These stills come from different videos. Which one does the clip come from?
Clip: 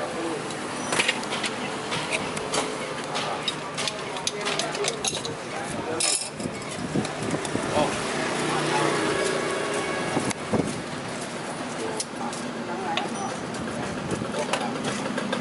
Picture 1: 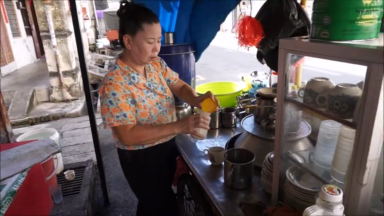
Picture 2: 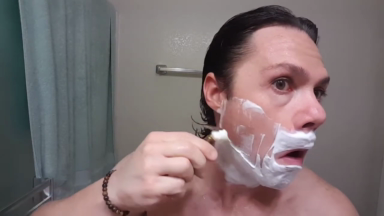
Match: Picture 1